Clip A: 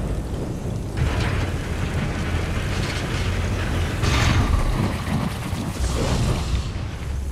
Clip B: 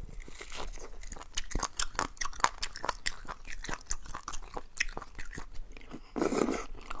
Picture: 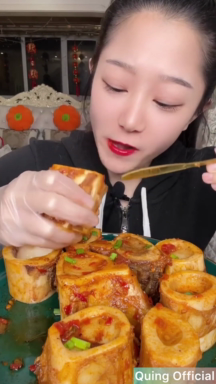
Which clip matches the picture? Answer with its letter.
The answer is B